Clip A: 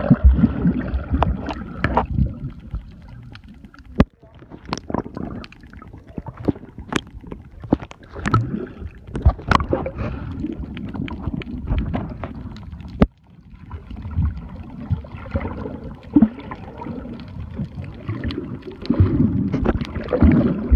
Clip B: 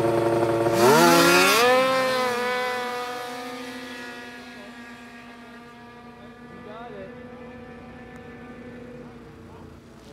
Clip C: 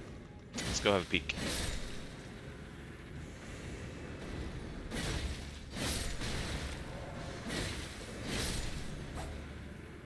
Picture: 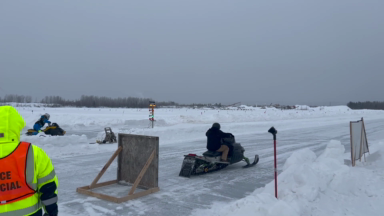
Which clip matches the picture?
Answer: B